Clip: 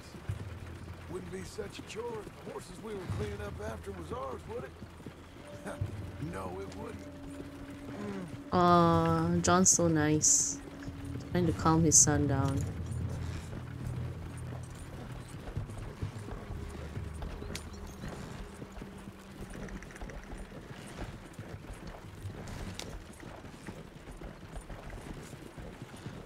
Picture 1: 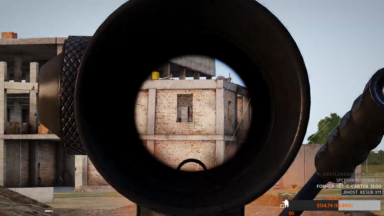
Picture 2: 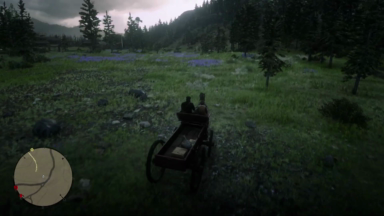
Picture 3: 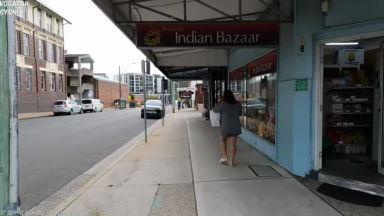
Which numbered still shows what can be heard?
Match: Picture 2